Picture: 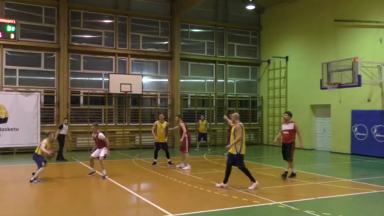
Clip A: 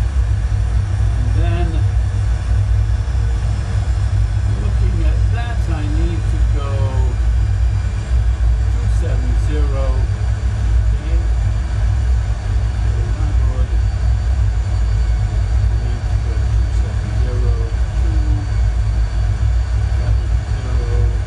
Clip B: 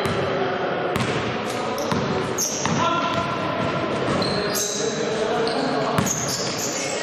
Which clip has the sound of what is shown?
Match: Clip B